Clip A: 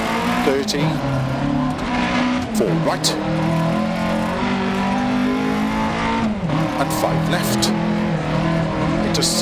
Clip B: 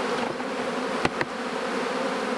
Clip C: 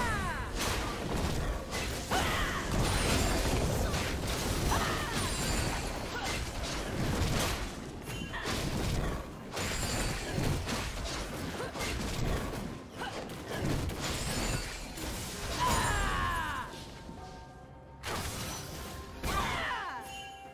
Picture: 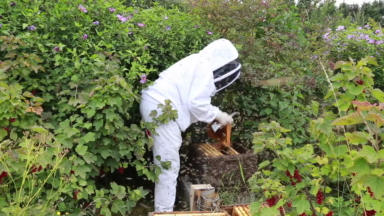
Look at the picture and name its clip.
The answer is B